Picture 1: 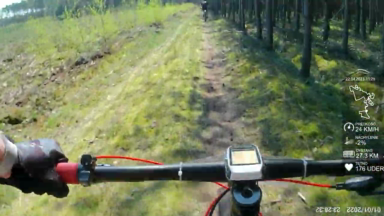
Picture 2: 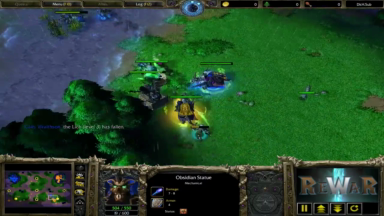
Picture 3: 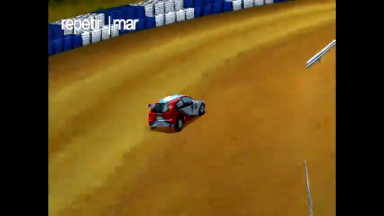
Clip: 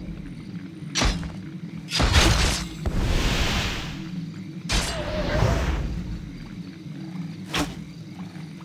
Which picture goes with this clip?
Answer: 2